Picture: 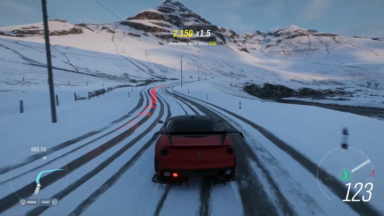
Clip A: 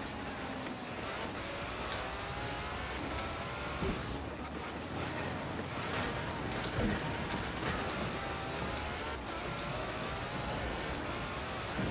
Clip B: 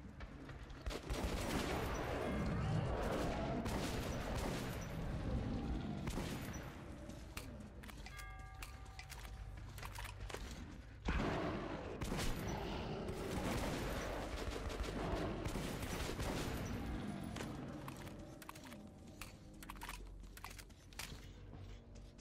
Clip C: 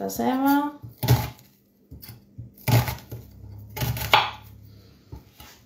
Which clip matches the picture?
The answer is A